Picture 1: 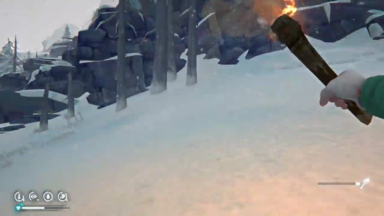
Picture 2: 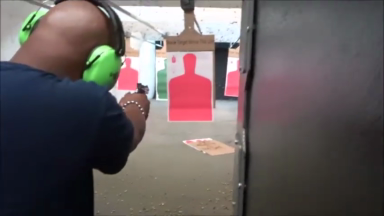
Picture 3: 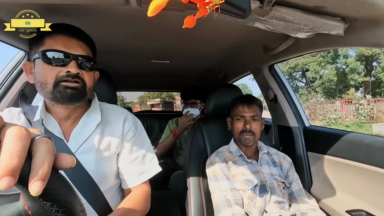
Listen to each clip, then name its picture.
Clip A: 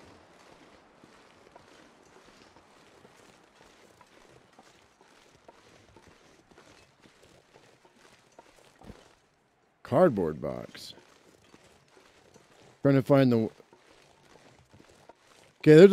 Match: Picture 1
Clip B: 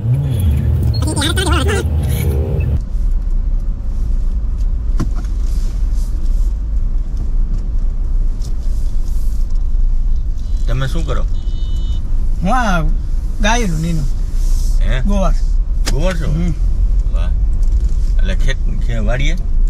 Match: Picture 3